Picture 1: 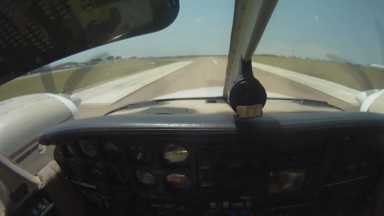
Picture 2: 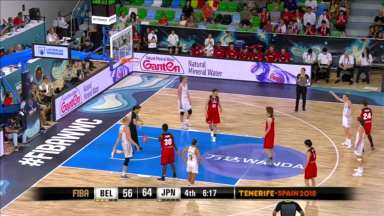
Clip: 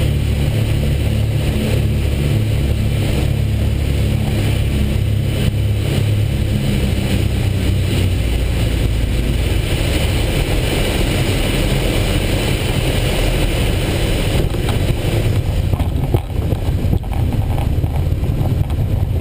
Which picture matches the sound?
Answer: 1